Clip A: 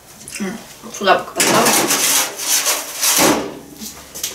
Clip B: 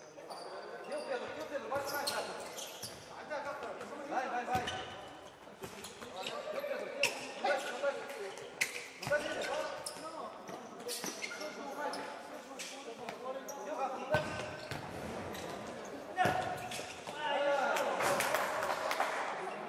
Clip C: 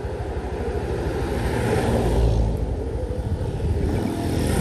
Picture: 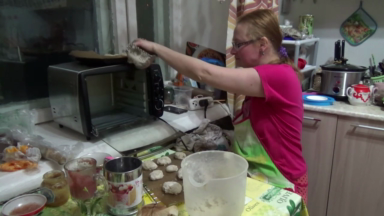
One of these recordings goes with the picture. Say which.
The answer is A